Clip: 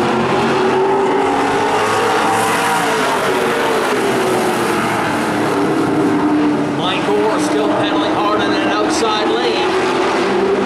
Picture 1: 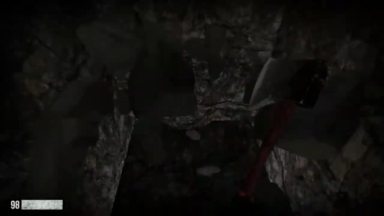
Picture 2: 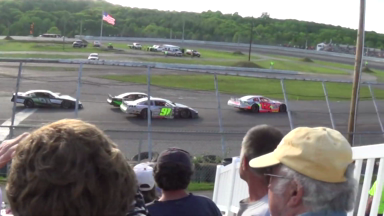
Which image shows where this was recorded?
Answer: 2